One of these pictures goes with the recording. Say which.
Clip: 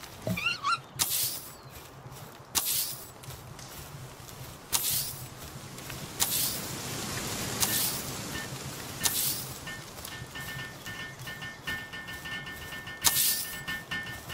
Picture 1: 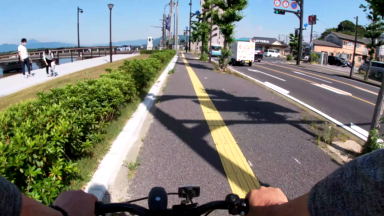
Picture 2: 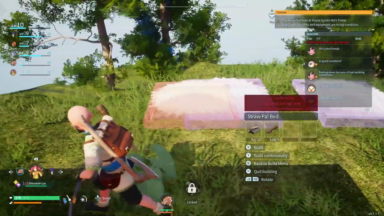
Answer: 2